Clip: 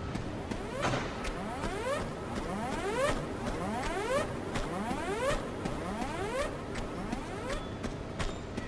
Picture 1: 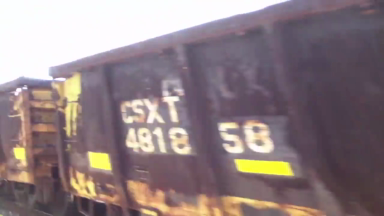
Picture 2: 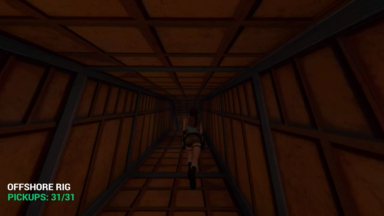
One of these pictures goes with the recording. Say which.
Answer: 2